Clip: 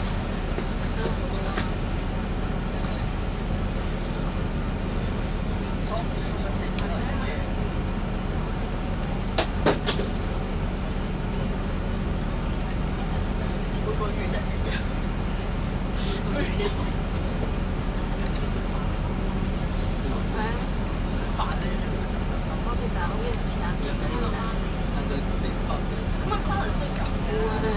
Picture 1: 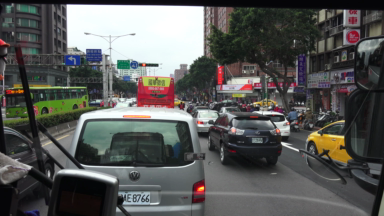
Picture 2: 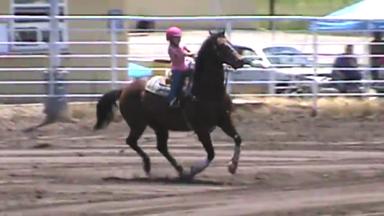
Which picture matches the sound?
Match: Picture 1